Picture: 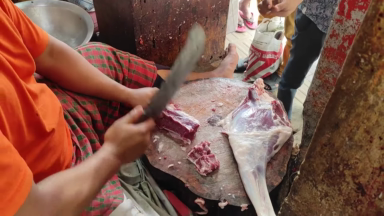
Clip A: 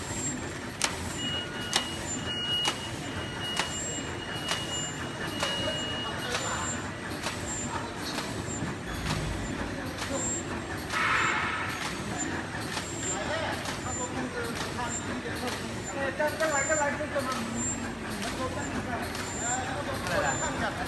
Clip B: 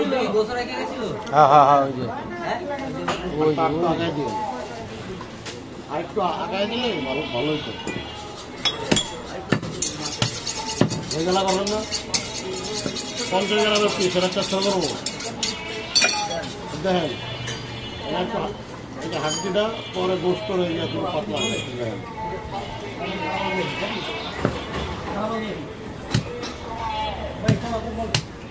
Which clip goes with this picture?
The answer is B